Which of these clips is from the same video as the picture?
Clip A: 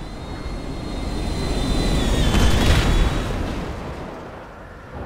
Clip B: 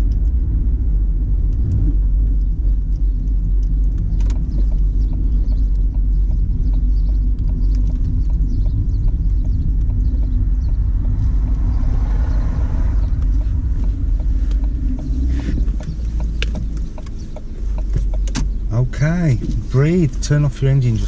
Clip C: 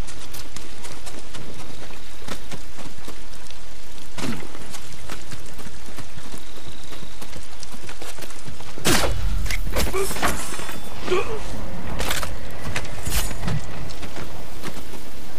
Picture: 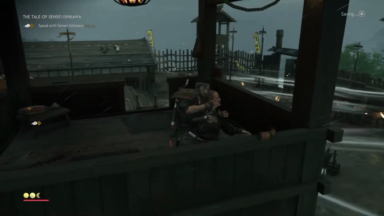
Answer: C